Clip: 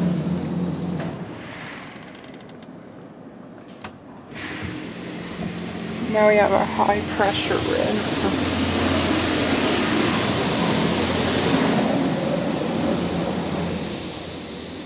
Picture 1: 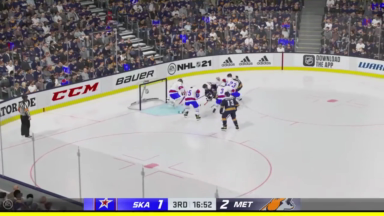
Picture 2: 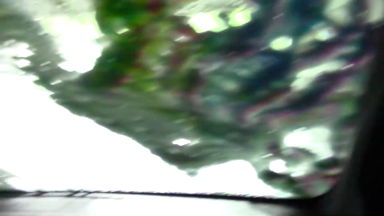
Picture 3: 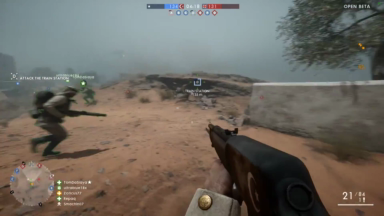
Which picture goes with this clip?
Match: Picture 2